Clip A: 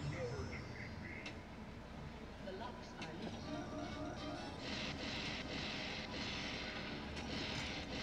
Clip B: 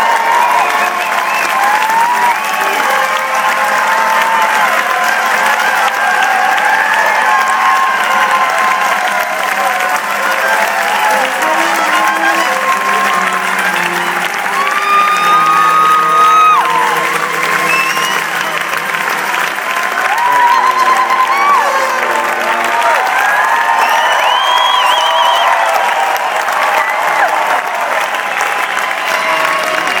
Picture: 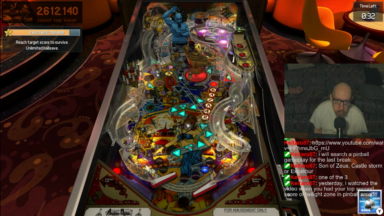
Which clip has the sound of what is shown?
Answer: A